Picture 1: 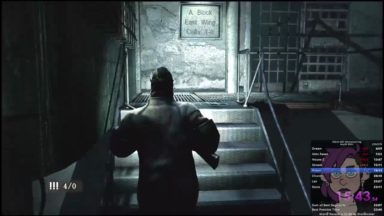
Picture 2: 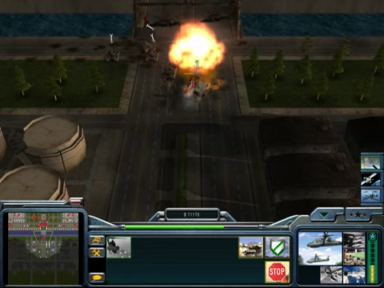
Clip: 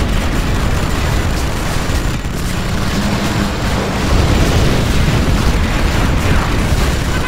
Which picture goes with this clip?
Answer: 2